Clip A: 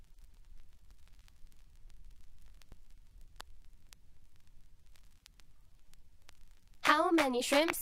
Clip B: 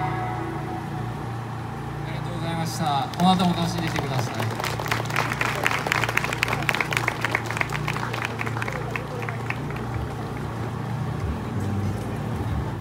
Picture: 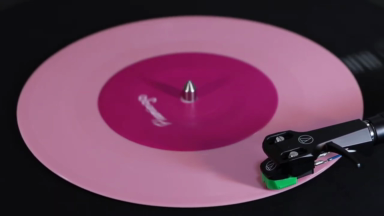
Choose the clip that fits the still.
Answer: A